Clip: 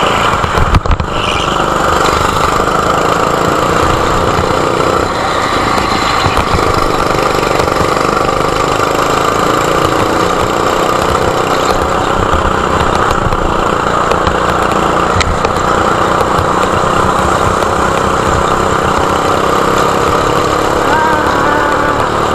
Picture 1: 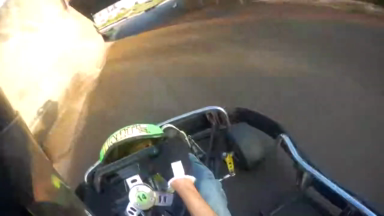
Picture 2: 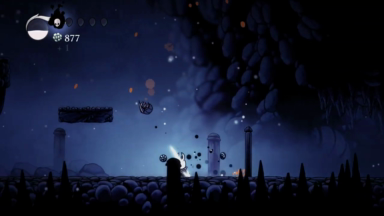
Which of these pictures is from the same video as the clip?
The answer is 1